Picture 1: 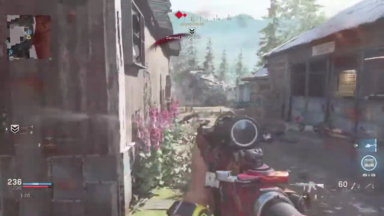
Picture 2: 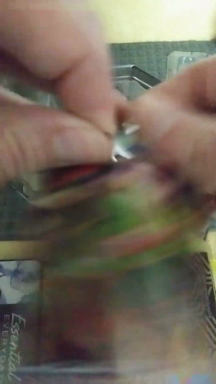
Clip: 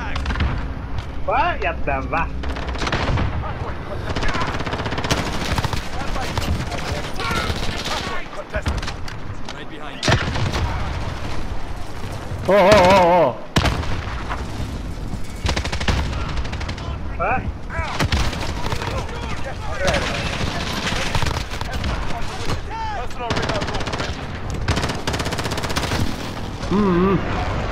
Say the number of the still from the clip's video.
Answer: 1